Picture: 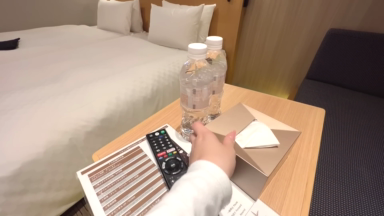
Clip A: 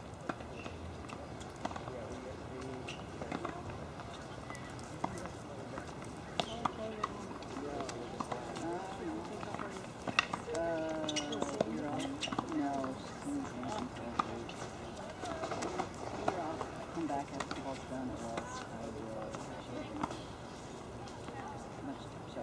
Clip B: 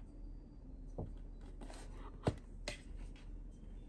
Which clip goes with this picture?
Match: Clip B